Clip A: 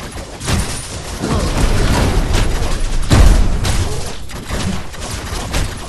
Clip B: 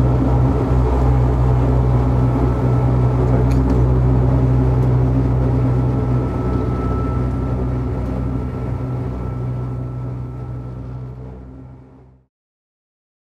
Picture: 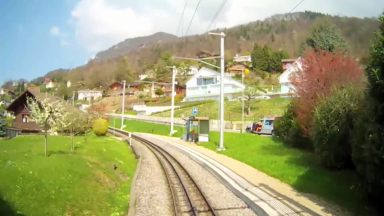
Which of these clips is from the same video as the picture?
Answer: B